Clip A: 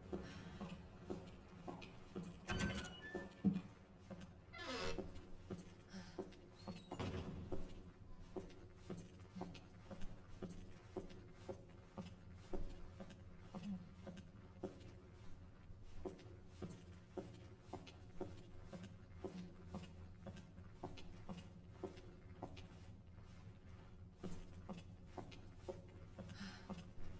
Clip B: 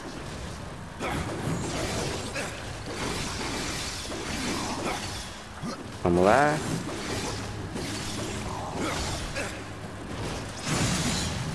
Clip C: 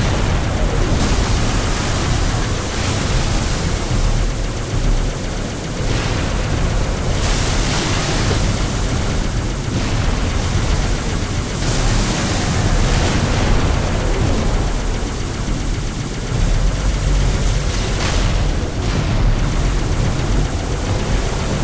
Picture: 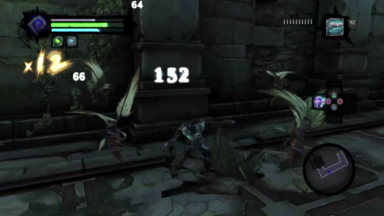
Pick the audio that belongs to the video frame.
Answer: B